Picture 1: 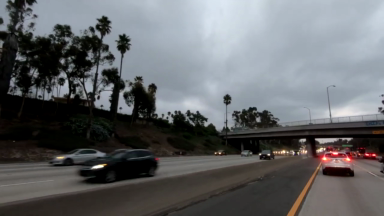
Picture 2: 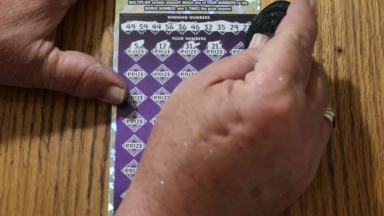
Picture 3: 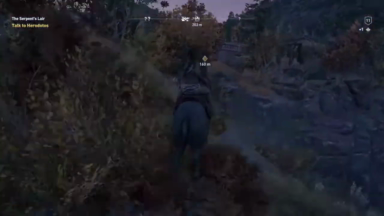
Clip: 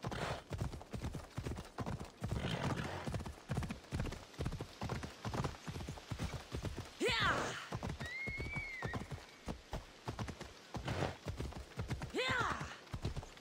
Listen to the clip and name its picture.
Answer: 3